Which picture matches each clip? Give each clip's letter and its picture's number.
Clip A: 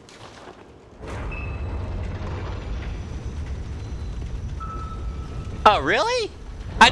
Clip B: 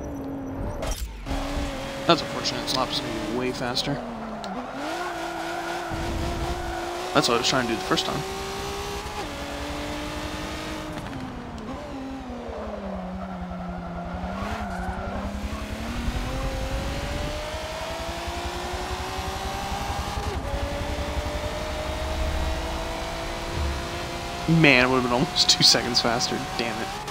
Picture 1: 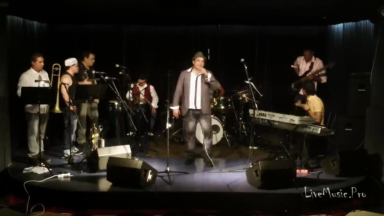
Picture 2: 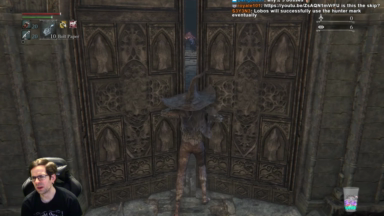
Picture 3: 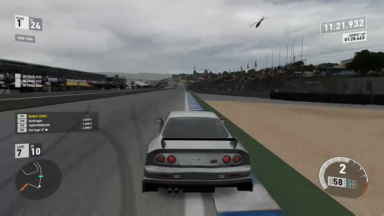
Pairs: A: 2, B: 3